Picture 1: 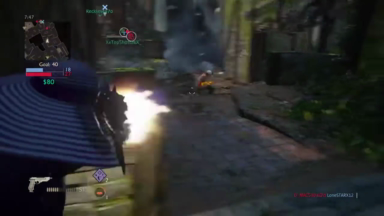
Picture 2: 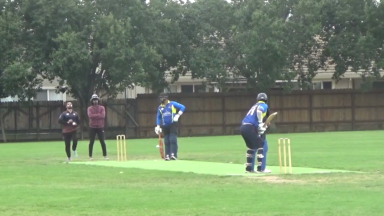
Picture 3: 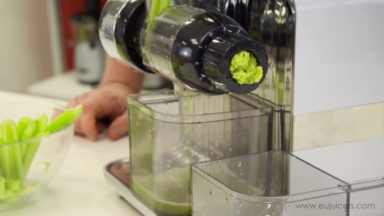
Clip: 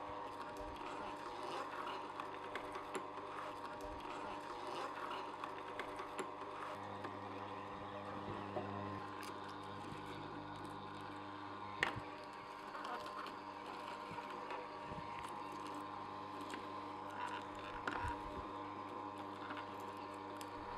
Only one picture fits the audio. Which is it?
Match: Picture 3